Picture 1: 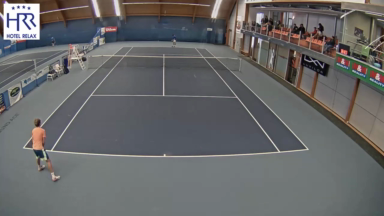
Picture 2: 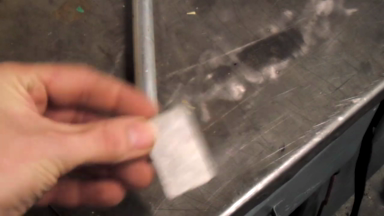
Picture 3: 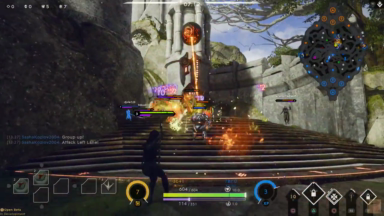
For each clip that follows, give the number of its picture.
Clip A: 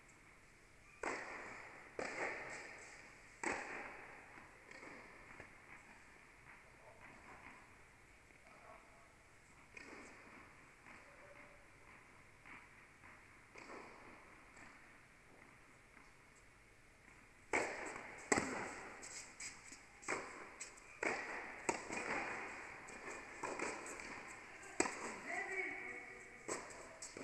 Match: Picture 1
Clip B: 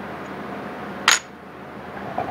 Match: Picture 2